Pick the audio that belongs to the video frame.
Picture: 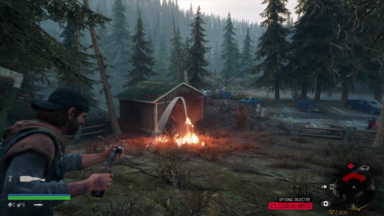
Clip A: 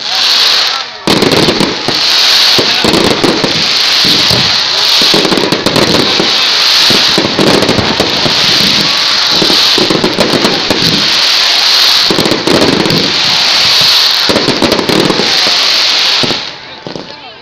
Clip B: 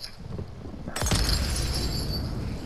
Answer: B